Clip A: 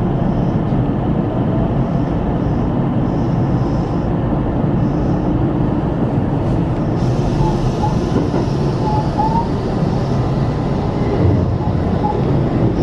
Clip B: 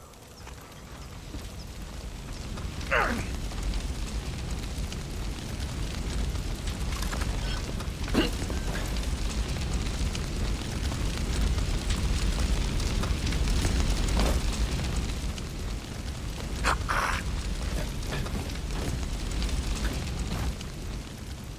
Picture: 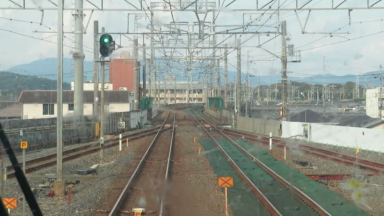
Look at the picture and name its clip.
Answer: A